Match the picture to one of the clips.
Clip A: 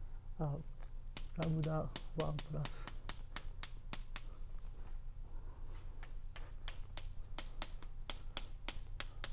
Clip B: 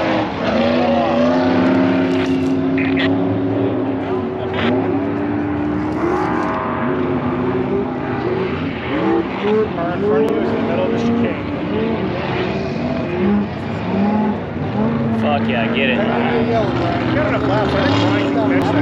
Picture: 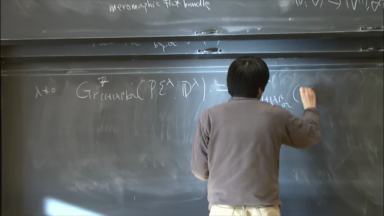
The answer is A